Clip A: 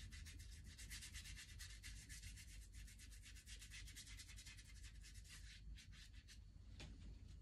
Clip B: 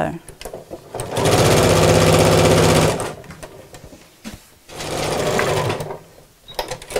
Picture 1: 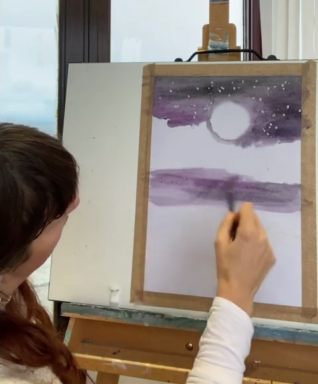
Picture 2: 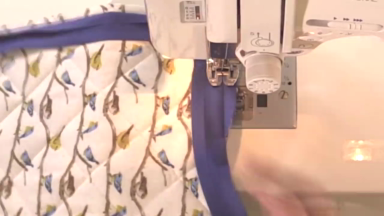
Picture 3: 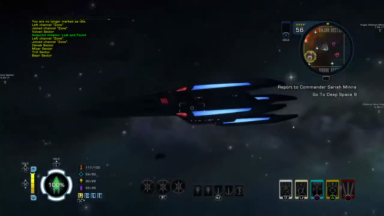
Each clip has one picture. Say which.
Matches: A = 1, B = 2